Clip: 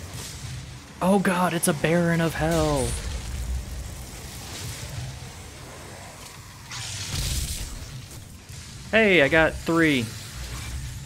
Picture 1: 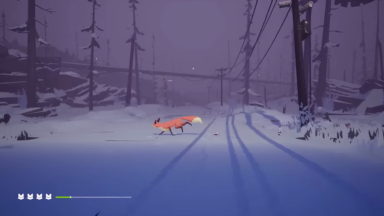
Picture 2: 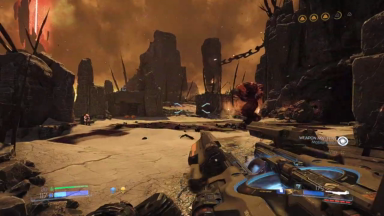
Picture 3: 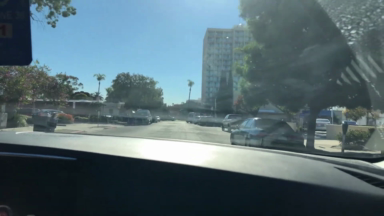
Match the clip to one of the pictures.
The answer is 2